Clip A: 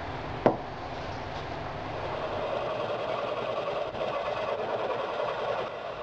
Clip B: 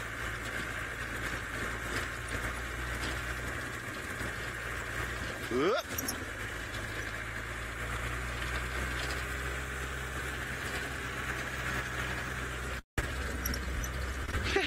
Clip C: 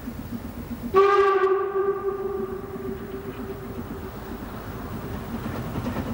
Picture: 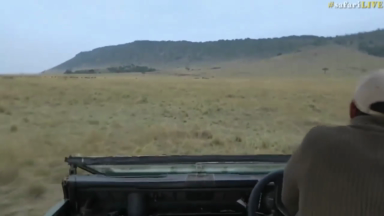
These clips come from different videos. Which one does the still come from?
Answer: B